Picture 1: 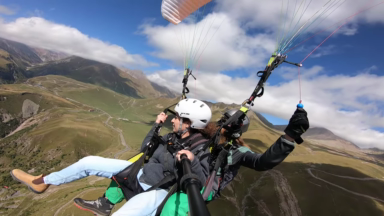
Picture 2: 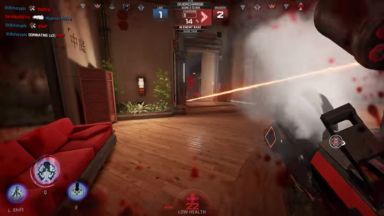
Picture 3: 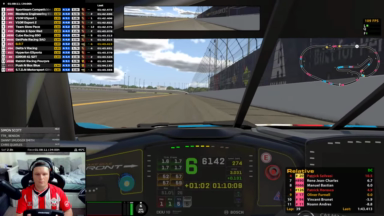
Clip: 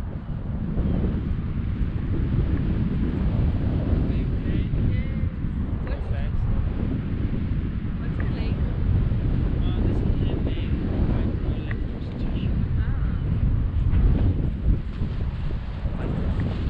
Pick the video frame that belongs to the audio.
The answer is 1